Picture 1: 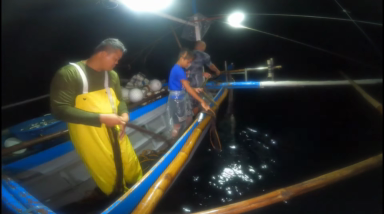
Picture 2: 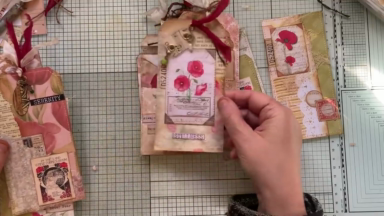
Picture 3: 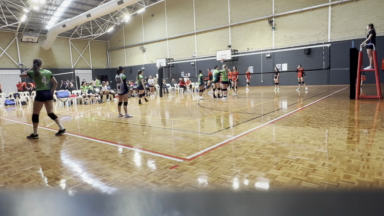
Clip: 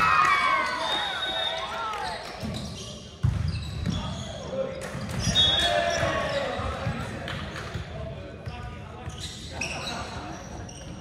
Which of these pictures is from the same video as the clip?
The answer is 3